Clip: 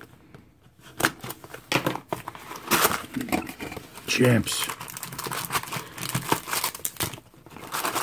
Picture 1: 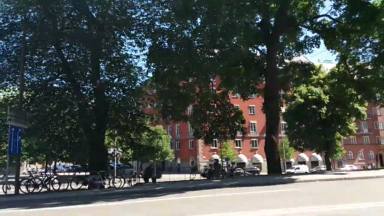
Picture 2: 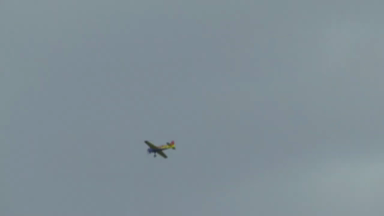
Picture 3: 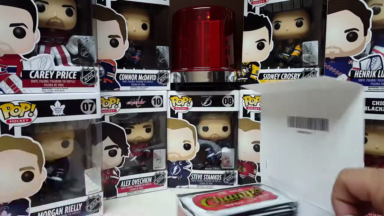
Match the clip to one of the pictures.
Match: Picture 3